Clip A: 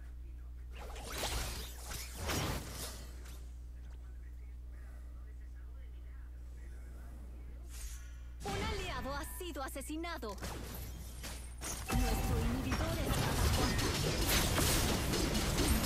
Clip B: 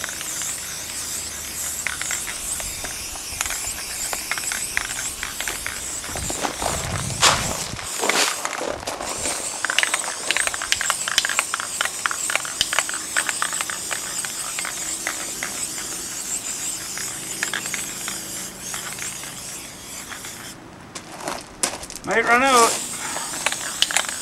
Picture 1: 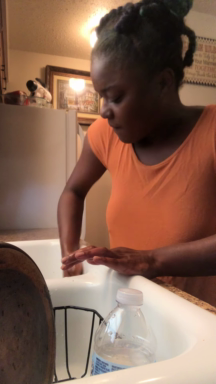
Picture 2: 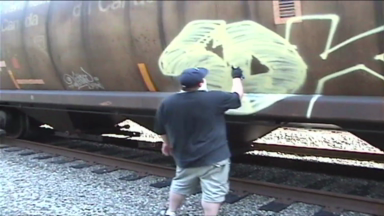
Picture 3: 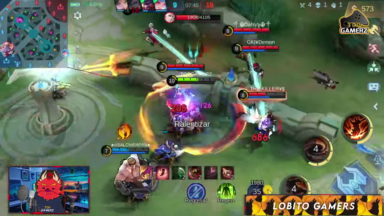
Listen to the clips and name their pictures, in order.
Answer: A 3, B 2